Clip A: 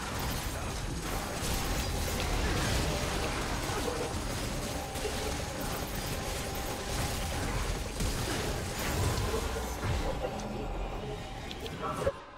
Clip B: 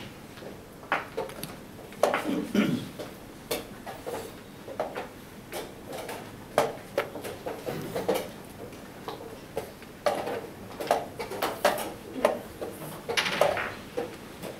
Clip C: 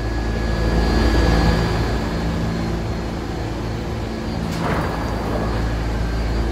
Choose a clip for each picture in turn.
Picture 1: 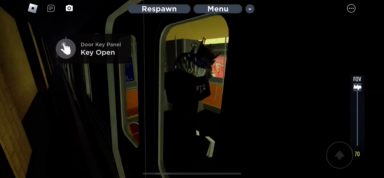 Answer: C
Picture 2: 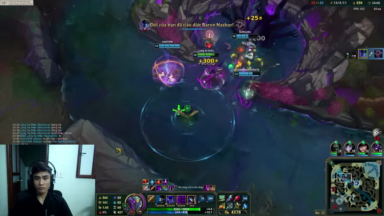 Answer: A